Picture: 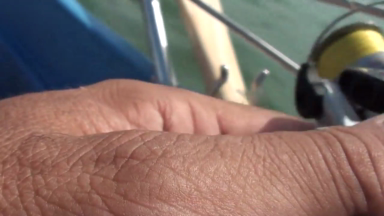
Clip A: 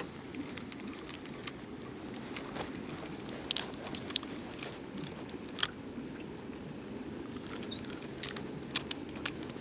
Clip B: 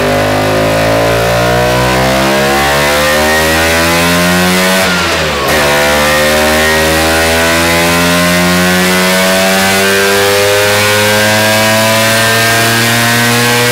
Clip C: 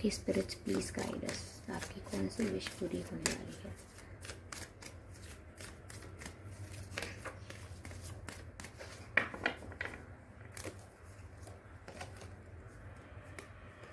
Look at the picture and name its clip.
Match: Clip A